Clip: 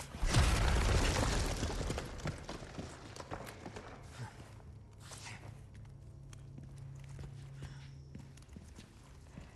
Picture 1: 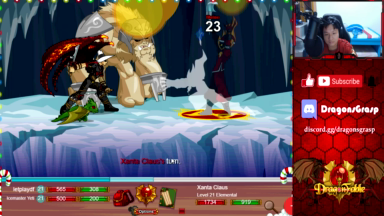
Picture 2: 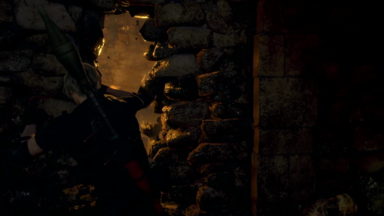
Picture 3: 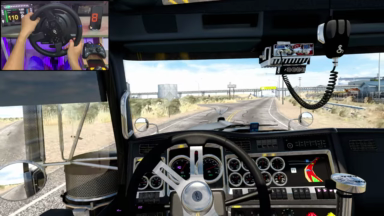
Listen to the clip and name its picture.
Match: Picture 2